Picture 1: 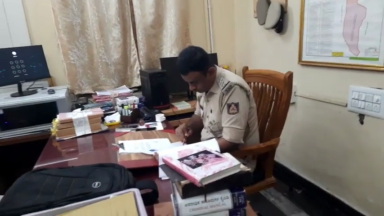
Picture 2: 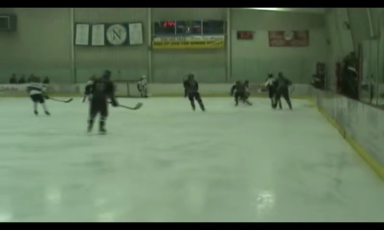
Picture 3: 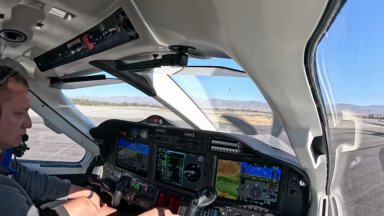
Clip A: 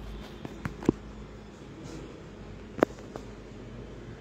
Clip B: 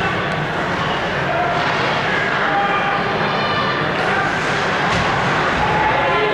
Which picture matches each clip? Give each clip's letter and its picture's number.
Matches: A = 1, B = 2